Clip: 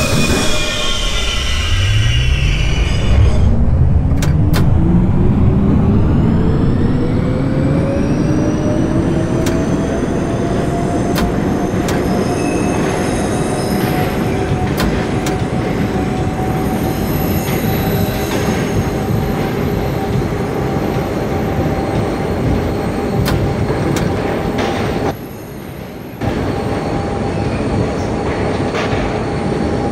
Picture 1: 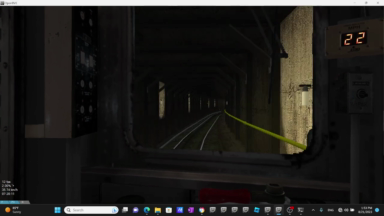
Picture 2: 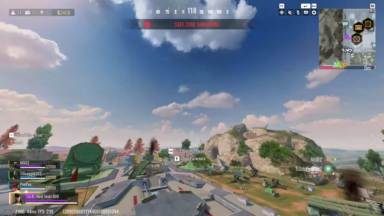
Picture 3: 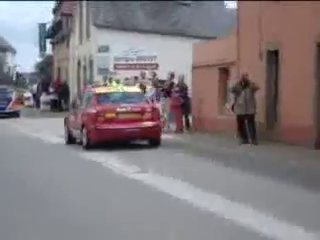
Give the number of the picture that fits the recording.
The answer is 1